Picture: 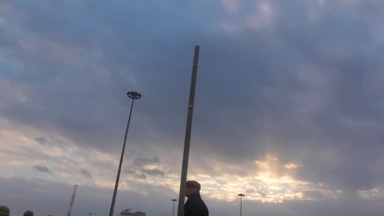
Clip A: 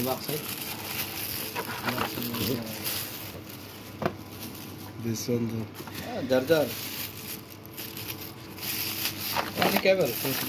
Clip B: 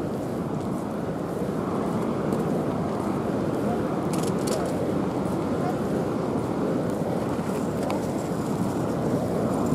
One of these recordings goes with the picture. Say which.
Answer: B